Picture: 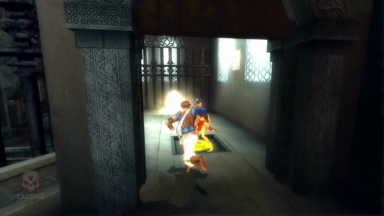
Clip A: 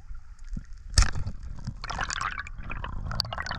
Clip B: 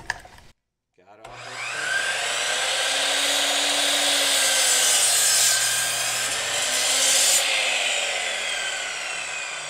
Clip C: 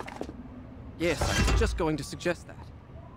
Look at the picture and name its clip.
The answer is C